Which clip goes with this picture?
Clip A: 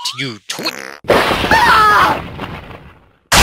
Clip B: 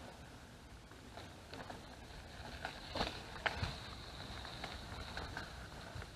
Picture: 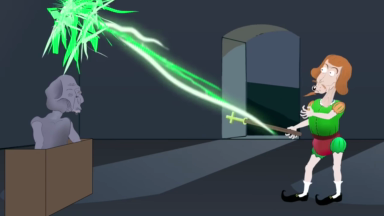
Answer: A